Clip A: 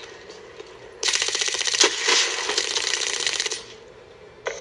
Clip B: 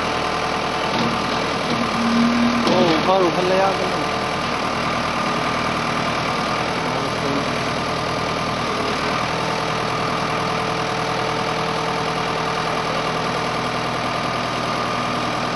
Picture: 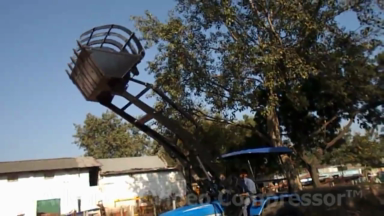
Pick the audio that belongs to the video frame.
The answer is B